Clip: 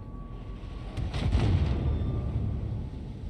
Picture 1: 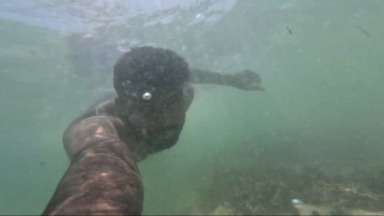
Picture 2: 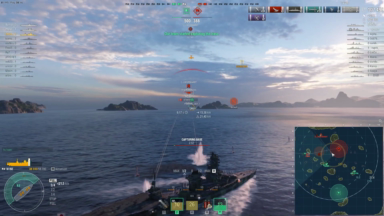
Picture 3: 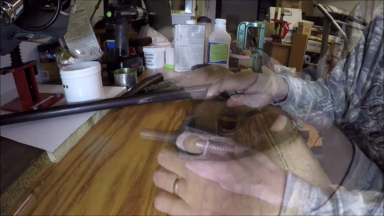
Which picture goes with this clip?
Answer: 2